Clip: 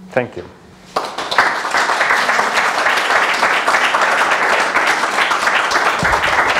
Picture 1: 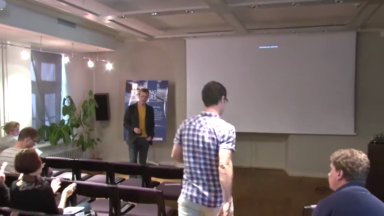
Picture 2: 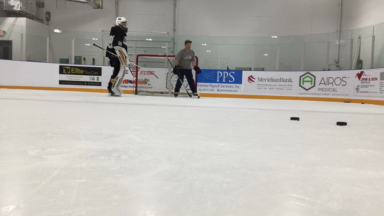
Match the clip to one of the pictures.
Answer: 1